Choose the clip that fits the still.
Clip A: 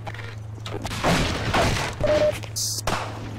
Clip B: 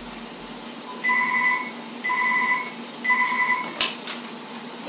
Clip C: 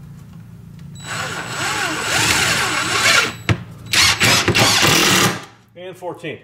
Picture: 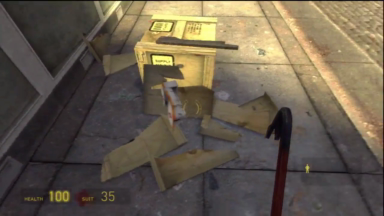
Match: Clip A